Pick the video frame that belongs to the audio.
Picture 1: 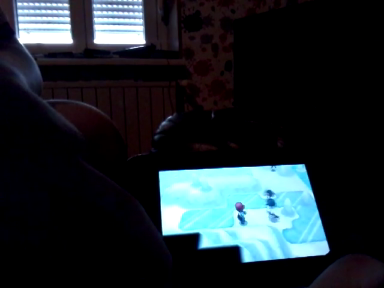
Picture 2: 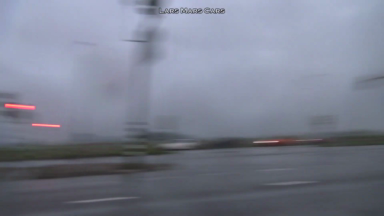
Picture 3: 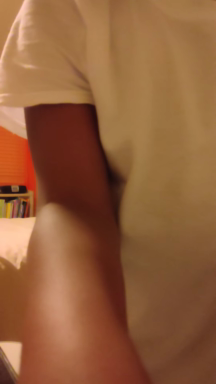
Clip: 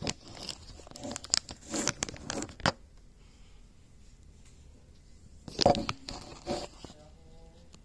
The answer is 3